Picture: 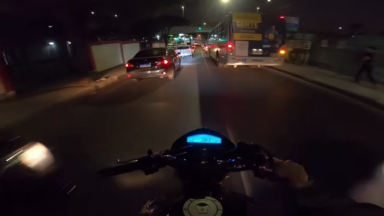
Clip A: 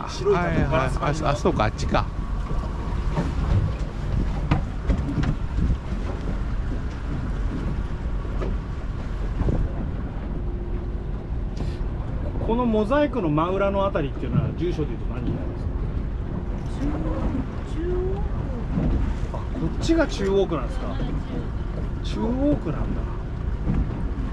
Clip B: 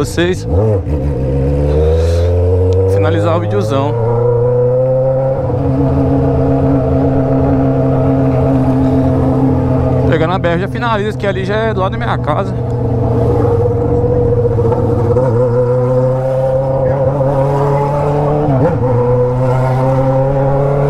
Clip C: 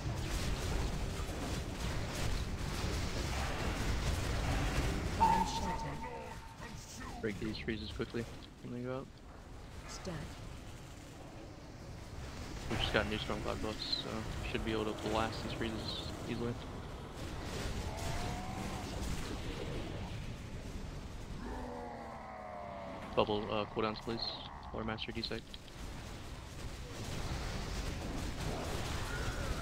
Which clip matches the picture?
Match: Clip B